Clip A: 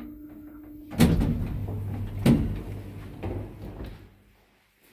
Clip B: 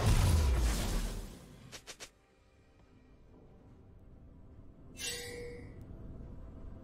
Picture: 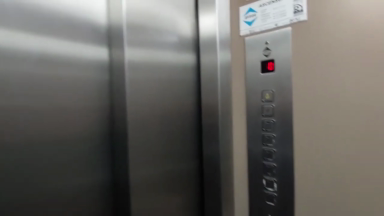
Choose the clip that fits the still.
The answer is A